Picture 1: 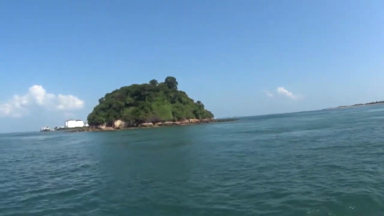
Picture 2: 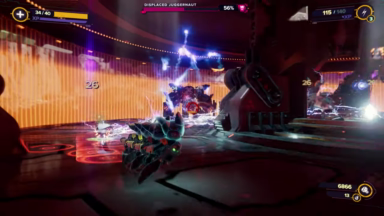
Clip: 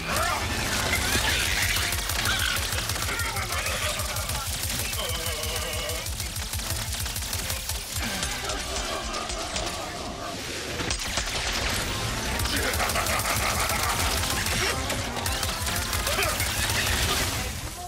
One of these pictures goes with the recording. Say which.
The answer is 2